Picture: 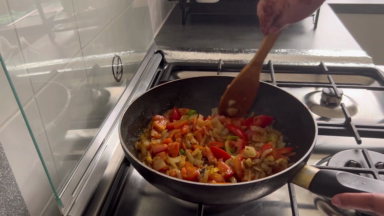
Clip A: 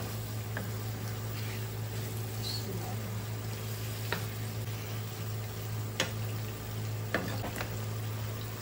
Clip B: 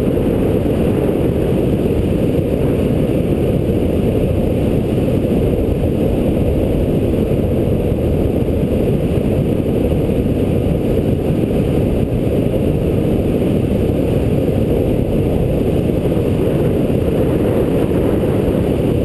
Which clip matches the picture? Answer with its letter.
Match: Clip A